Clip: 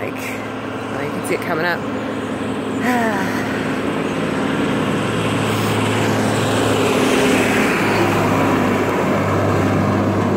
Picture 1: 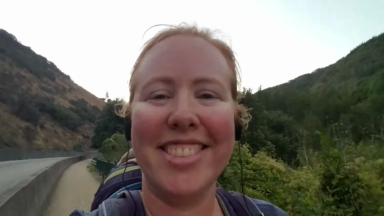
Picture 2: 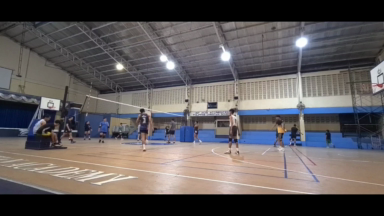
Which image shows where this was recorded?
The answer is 1